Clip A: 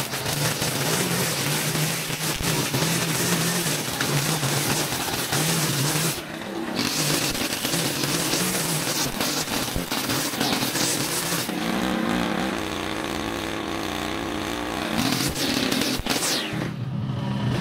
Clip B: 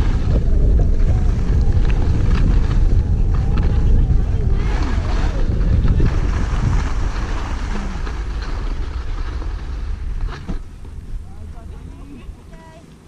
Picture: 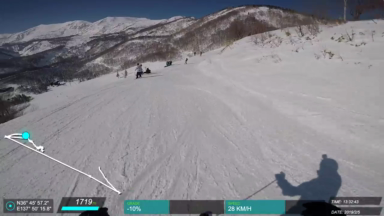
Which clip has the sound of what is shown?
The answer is B